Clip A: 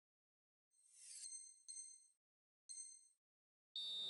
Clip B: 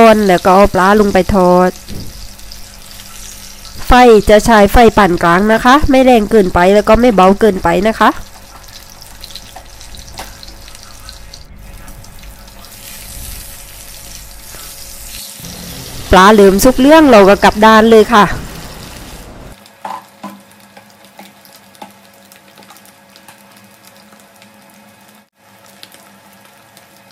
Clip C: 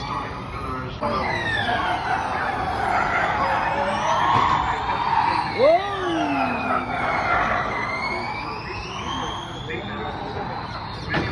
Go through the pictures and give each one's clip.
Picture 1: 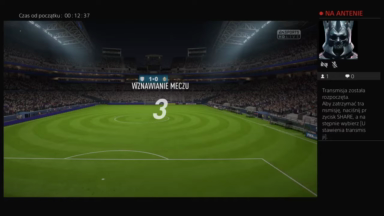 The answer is A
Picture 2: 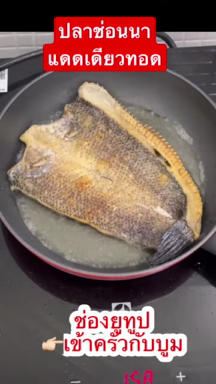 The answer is B